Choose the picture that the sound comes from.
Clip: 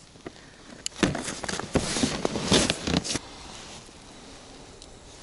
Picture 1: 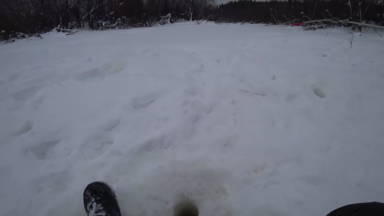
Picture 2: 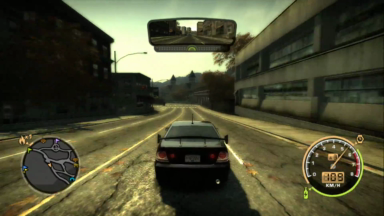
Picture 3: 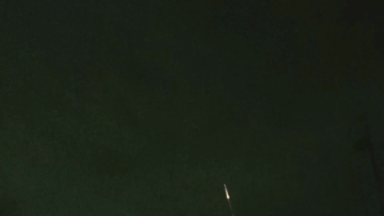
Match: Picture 1